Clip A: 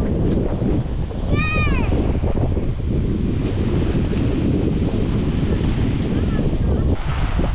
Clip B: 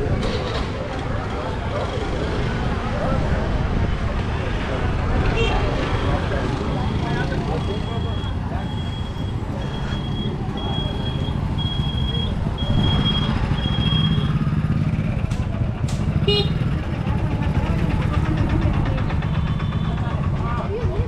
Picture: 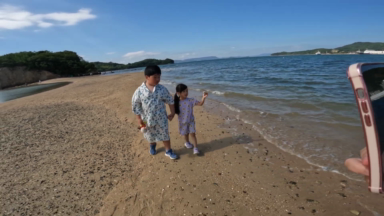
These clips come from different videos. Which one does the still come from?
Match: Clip A